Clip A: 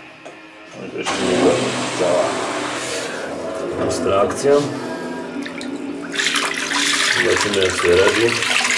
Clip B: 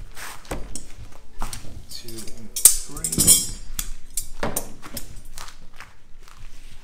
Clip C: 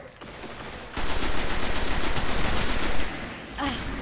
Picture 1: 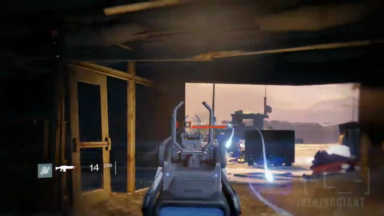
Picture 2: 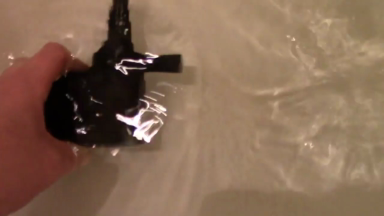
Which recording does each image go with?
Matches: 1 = C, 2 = A